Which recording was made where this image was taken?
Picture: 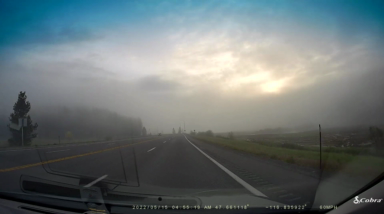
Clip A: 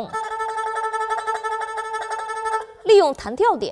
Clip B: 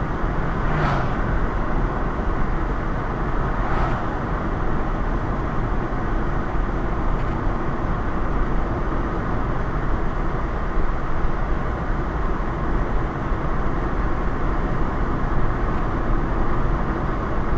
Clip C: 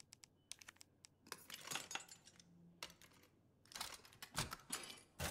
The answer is B